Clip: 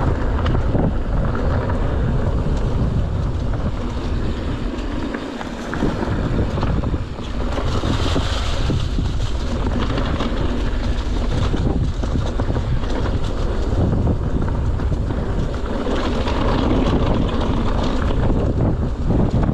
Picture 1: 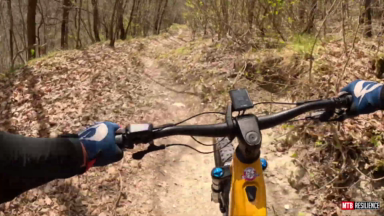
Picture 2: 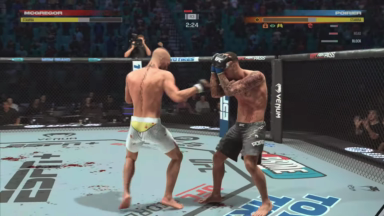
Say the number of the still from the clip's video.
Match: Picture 1